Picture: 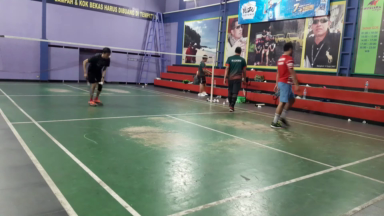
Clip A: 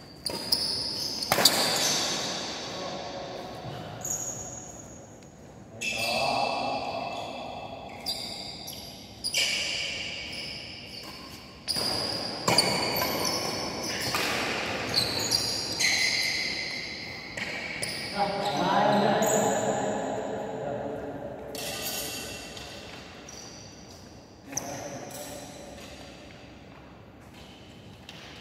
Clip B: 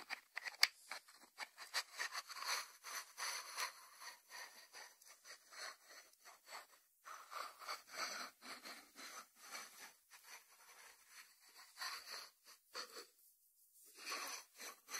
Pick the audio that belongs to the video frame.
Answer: A